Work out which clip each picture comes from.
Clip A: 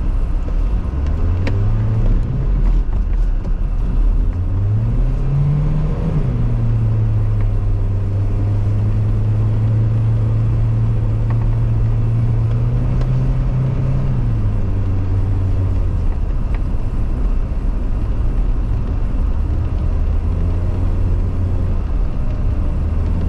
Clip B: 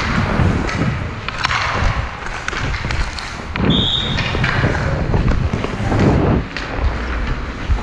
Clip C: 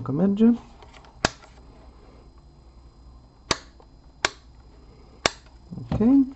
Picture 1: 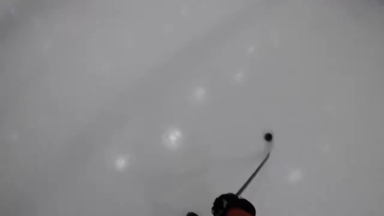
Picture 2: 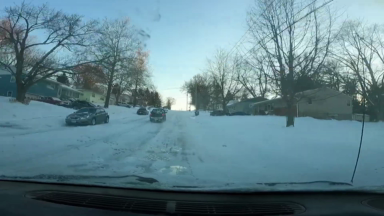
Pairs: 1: B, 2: A